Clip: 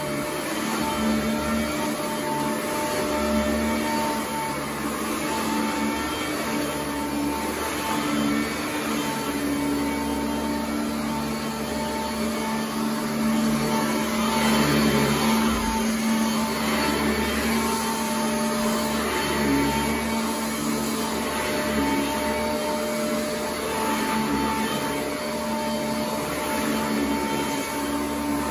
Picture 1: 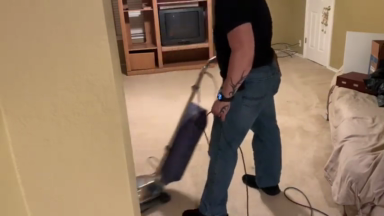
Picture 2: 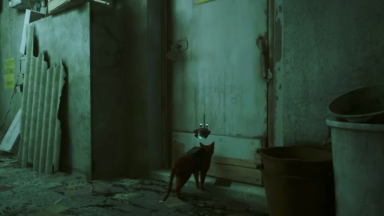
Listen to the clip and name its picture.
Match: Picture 1